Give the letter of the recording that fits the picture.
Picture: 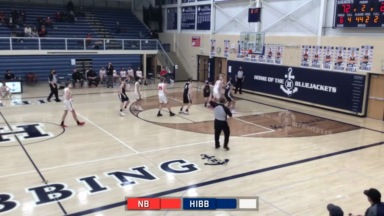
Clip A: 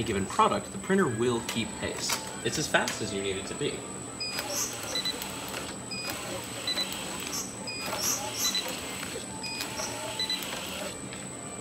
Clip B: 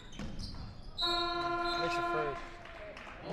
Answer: B